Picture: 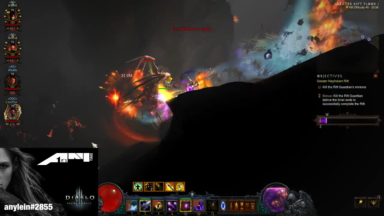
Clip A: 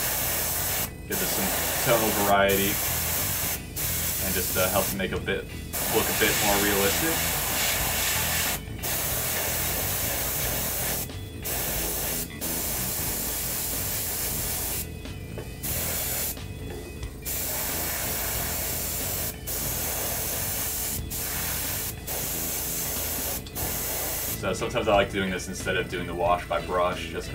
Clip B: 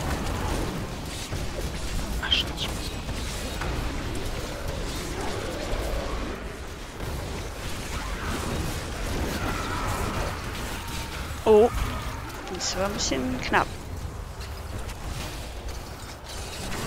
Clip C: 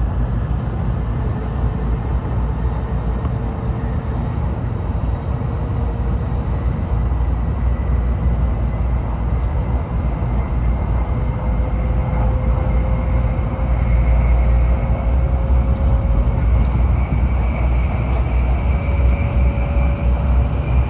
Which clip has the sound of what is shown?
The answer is B